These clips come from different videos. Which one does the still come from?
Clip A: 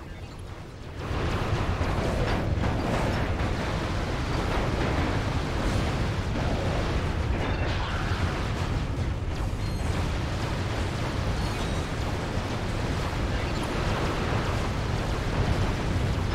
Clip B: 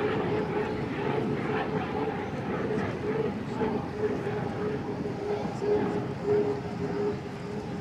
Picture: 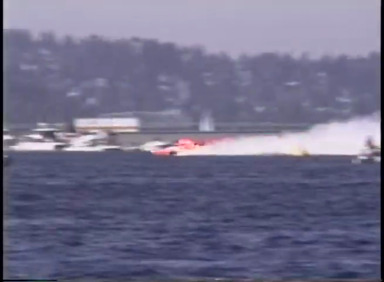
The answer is B